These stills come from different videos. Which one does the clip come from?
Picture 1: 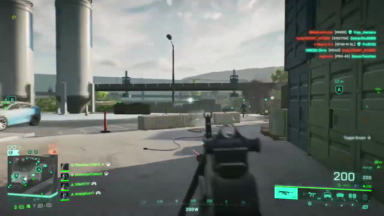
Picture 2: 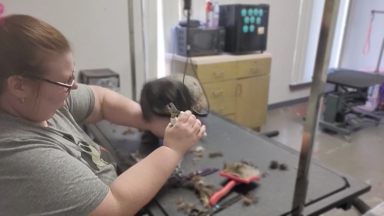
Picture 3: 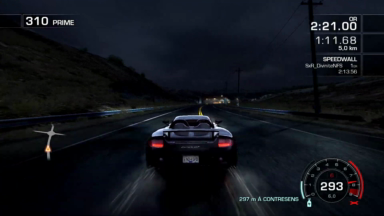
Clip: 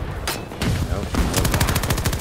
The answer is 1